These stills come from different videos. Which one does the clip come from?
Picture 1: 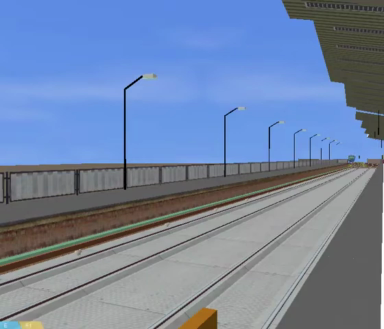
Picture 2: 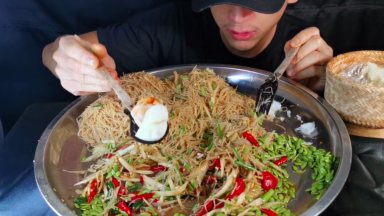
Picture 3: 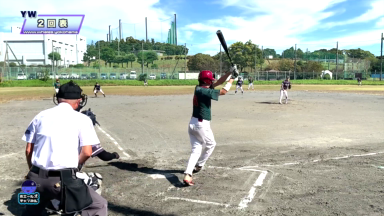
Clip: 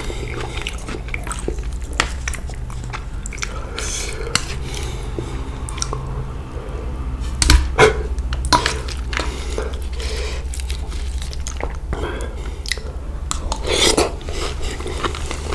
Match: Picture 2